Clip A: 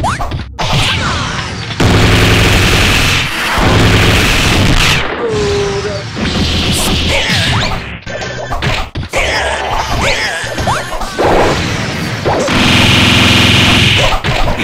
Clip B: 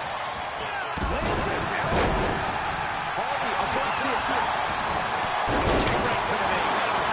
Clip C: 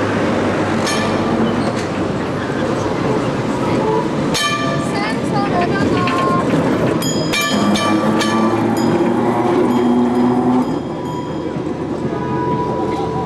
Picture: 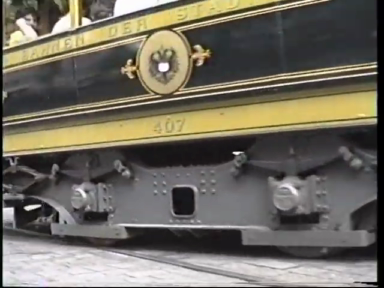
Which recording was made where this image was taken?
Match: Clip C